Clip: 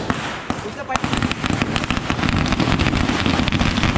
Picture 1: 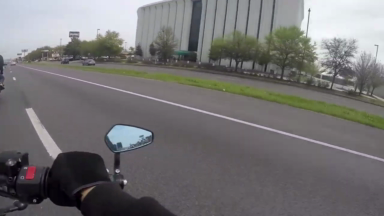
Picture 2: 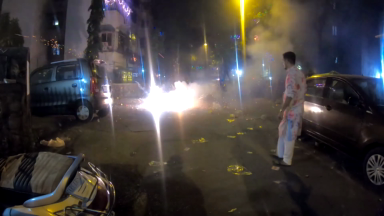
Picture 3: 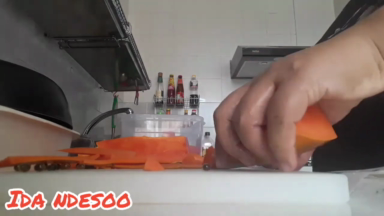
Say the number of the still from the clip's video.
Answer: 2